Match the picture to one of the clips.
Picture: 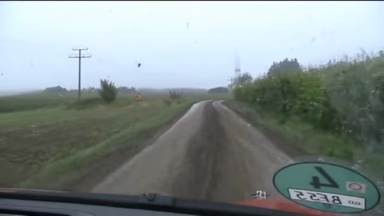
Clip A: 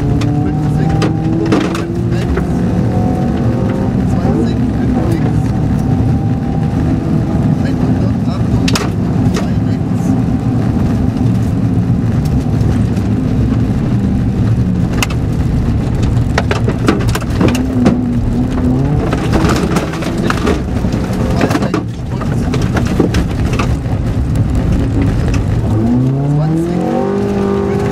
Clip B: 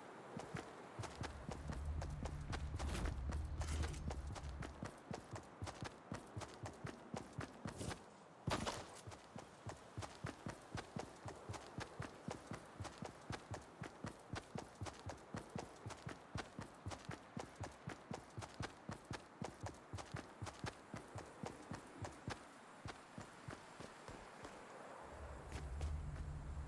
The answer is A